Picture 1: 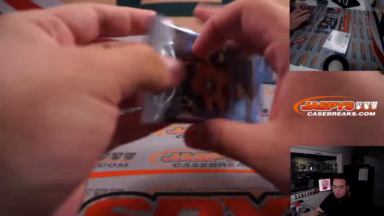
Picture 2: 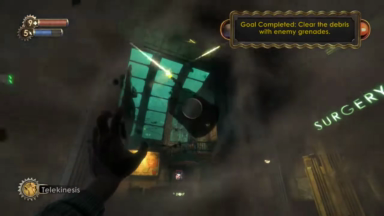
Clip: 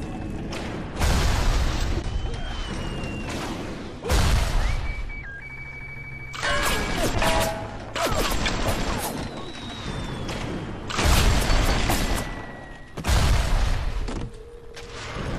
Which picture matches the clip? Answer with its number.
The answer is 2